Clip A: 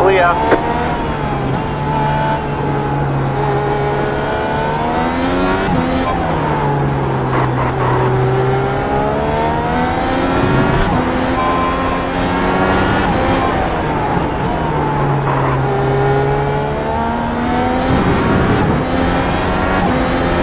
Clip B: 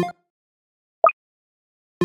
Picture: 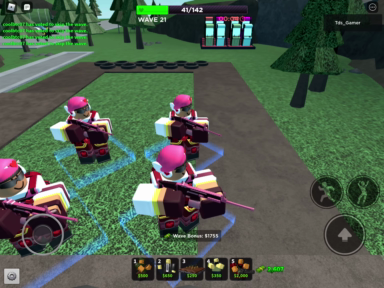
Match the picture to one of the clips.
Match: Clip B